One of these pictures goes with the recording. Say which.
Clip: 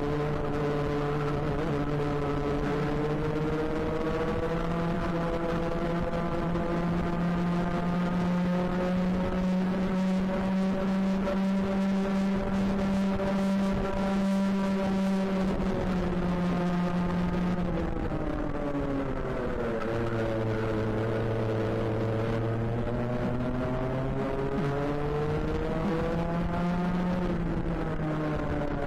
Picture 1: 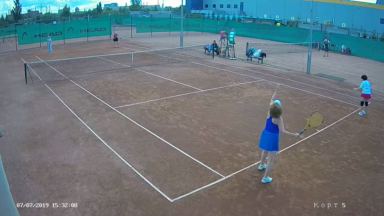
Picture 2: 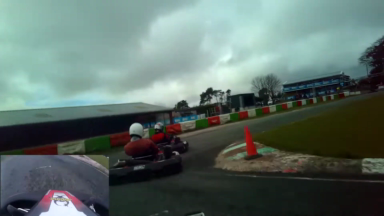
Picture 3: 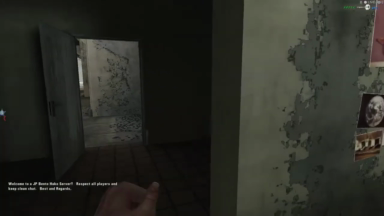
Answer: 2